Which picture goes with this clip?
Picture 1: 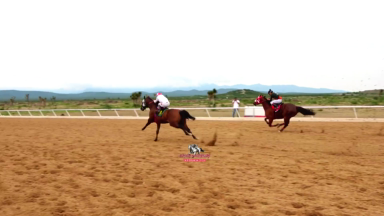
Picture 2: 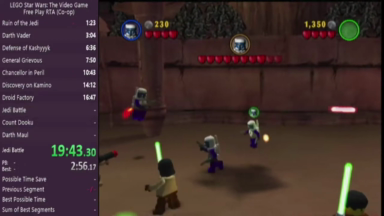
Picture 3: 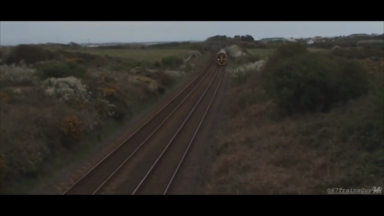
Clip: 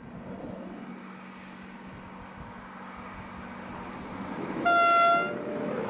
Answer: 3